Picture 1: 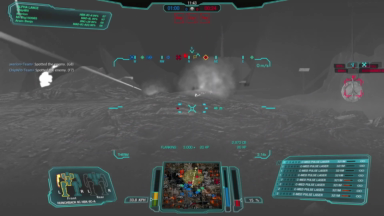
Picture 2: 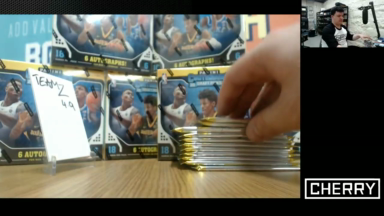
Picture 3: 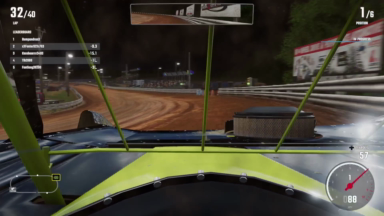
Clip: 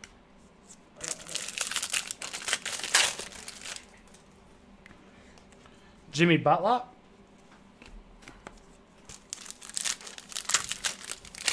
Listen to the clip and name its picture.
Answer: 2